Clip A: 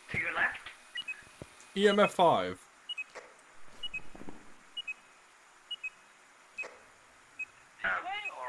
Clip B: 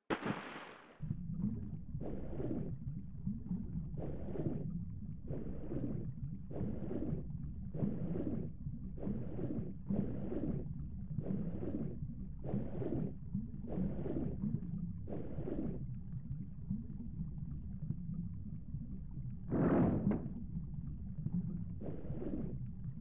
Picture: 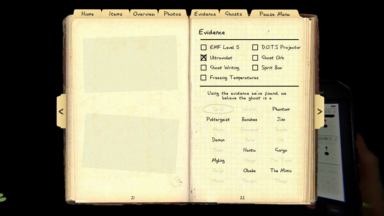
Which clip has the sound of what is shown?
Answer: A